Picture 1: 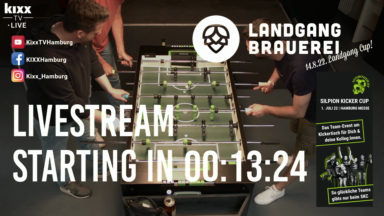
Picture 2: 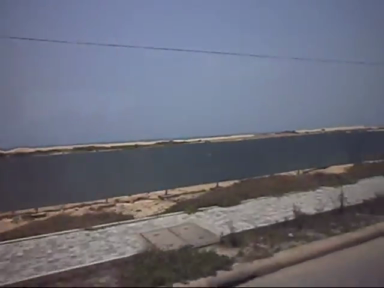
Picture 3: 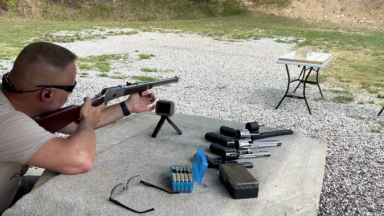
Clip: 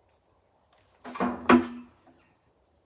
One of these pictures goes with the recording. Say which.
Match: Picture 3